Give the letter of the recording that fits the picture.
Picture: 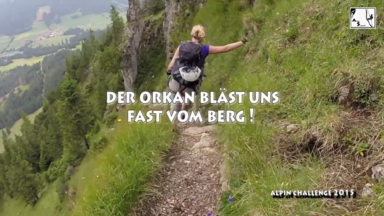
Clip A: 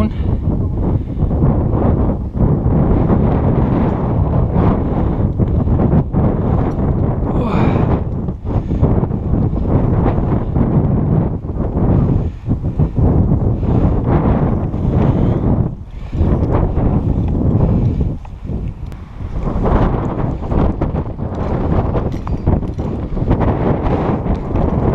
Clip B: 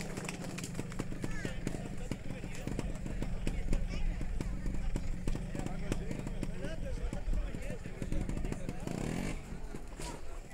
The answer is A